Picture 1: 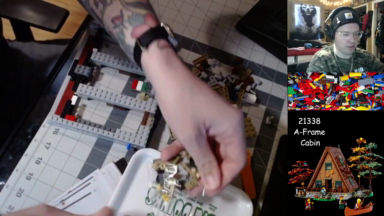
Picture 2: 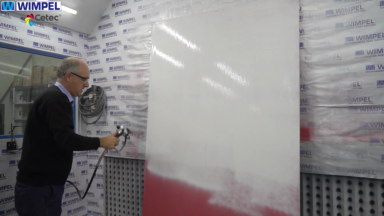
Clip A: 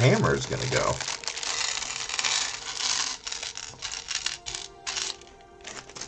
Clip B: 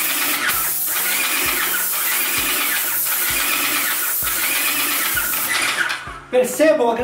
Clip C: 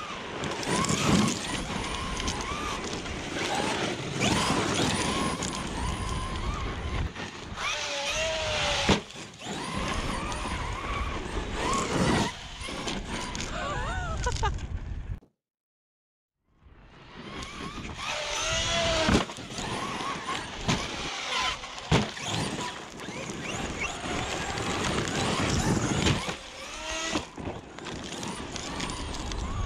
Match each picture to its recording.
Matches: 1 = A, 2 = B